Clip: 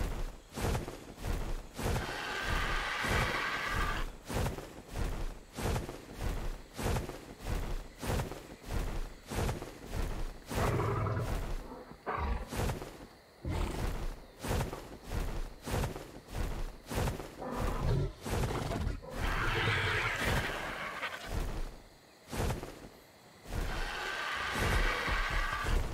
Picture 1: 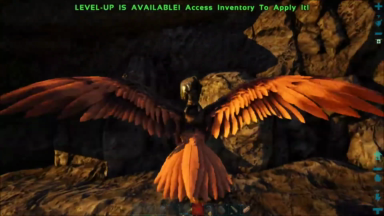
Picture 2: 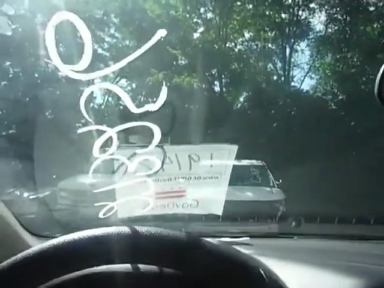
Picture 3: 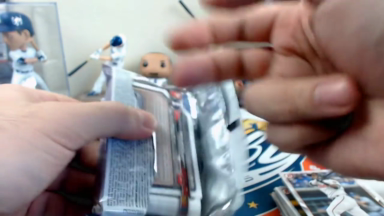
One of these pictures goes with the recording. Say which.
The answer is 1